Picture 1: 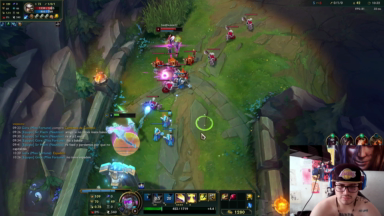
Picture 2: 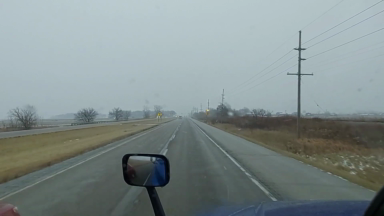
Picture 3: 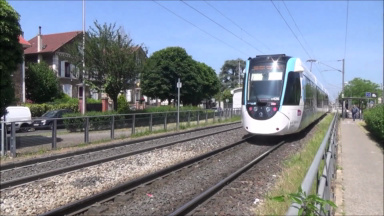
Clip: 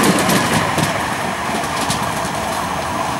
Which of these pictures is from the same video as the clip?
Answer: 3